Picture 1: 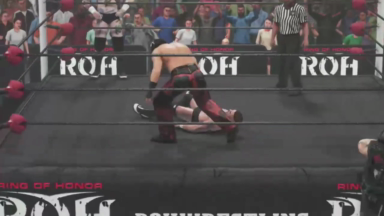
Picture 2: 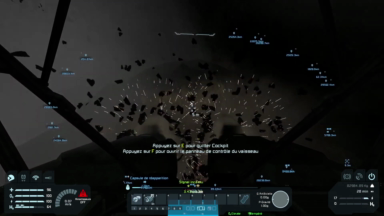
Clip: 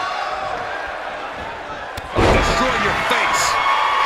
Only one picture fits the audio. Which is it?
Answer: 1